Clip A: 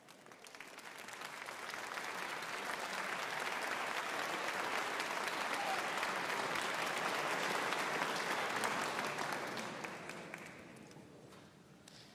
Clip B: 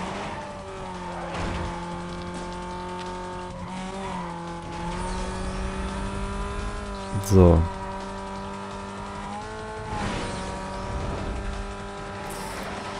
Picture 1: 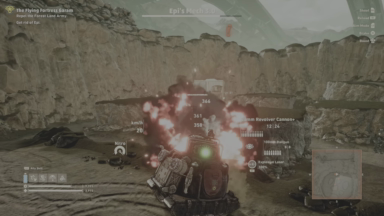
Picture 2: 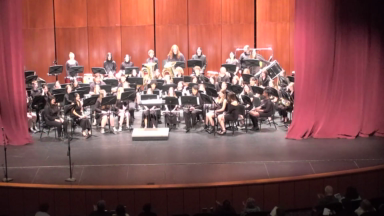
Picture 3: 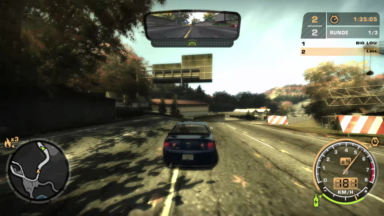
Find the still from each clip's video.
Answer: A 2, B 3